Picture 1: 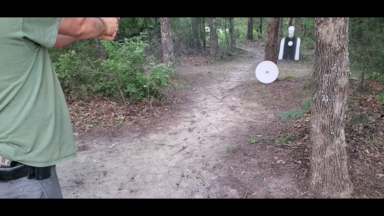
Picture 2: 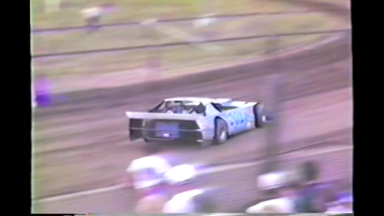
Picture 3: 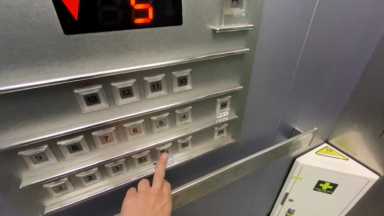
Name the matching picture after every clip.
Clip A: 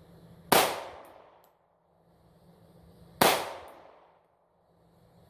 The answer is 1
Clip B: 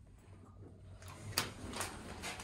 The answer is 3